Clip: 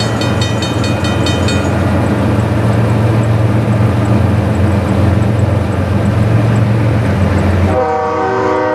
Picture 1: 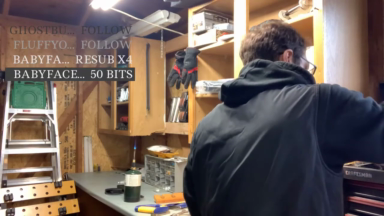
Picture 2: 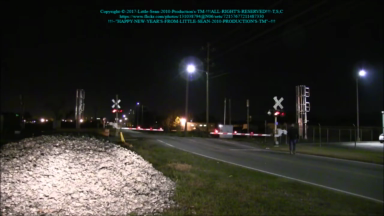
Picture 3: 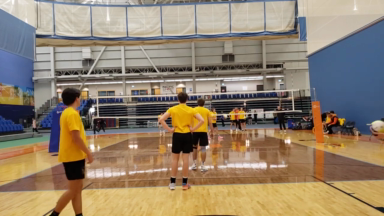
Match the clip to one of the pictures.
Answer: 2